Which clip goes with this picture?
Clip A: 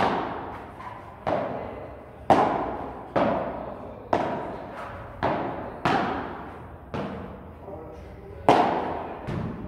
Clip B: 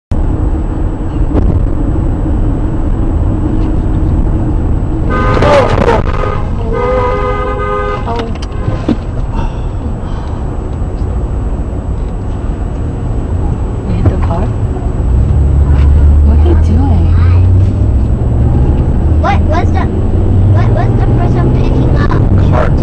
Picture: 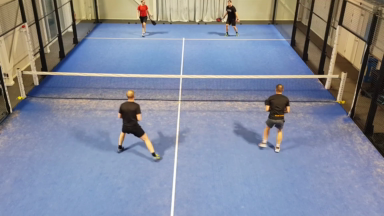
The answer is A